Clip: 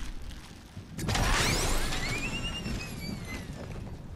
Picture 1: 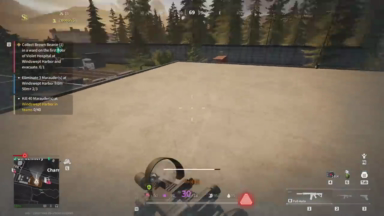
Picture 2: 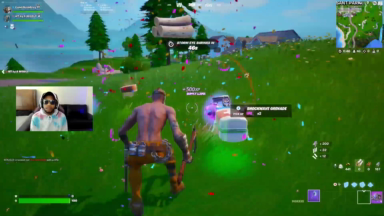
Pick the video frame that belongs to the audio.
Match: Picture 2